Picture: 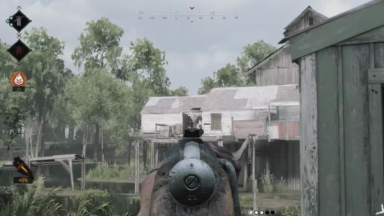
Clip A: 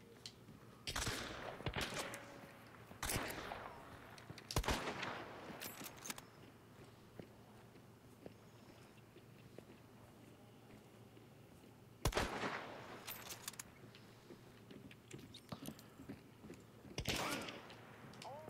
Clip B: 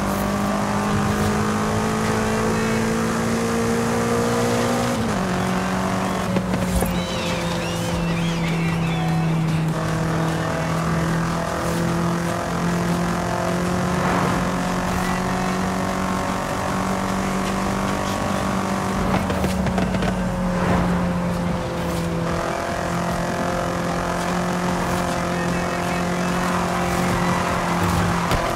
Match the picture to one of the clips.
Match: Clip A